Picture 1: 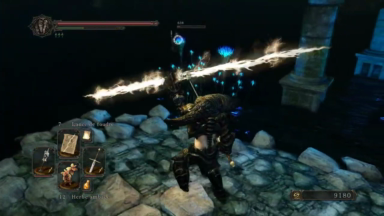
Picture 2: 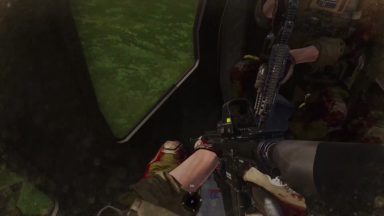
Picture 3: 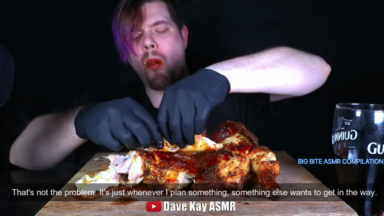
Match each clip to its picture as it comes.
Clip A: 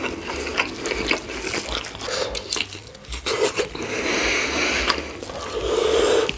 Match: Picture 3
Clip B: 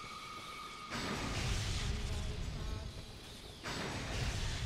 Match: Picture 1